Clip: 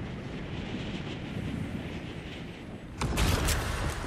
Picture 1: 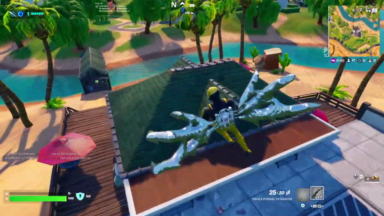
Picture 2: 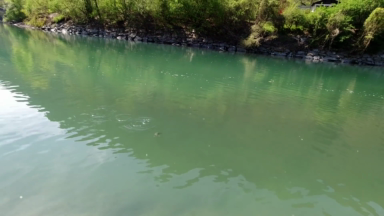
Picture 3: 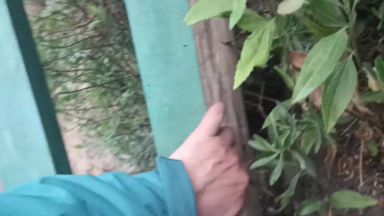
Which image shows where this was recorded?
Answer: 1